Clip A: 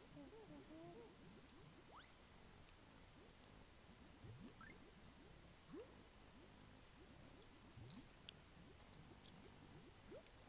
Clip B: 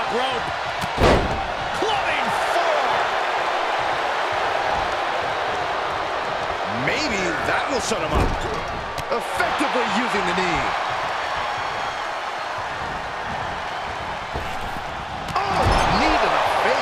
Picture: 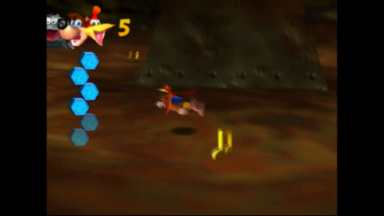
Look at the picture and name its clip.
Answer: A